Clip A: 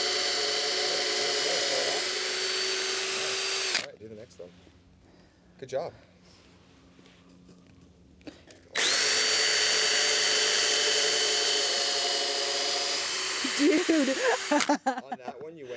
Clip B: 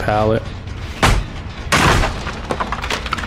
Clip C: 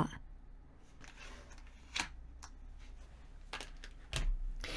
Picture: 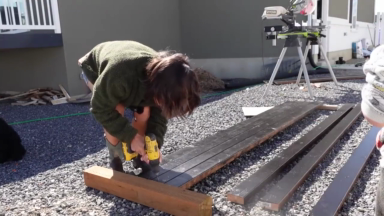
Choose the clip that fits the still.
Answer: A